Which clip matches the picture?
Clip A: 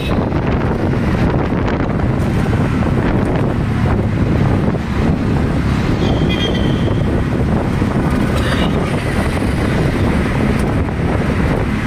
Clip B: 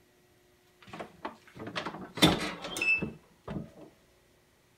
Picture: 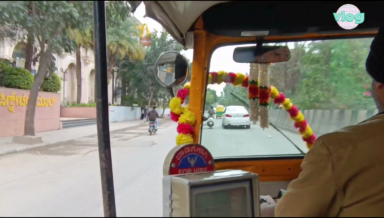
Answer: A